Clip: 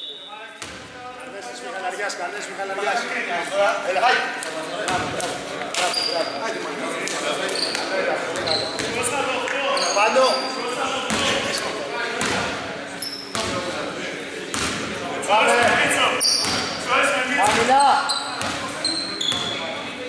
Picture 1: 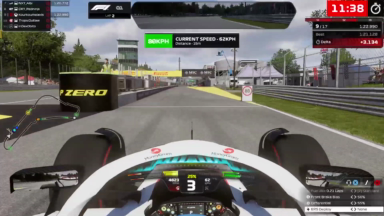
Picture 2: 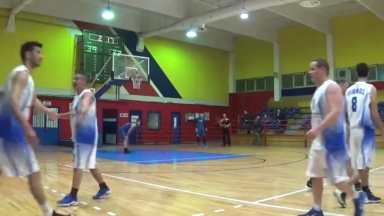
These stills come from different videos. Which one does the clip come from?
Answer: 2